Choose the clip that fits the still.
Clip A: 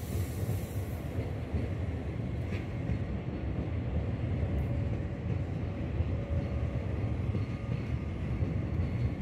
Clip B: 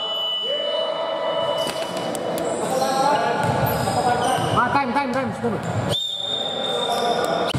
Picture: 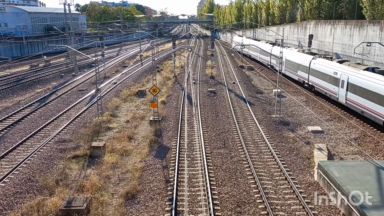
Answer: A